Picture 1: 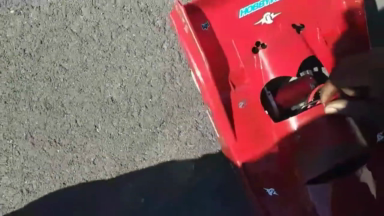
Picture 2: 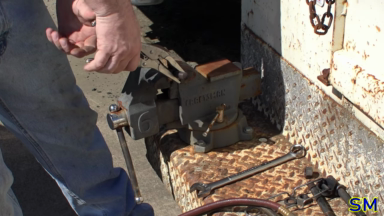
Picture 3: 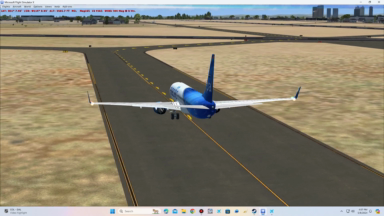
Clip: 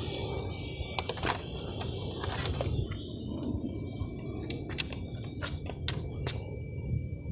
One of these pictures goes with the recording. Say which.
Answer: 1